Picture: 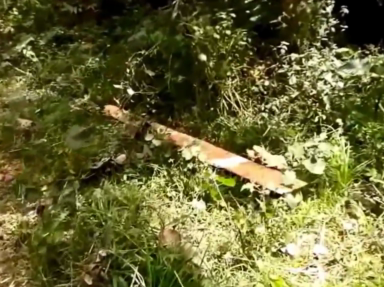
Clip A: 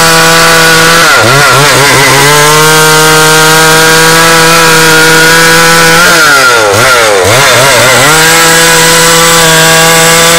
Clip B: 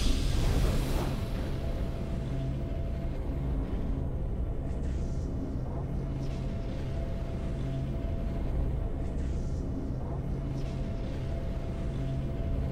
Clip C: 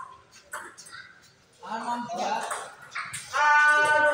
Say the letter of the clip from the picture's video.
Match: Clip A